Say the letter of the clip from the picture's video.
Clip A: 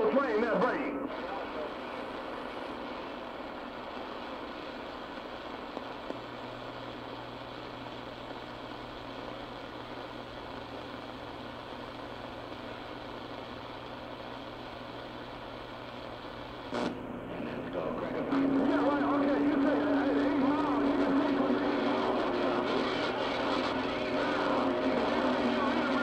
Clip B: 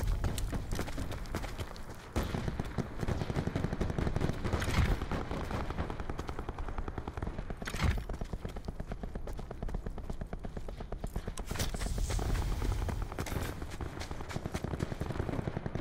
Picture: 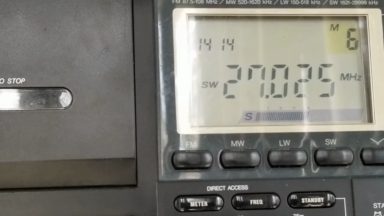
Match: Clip A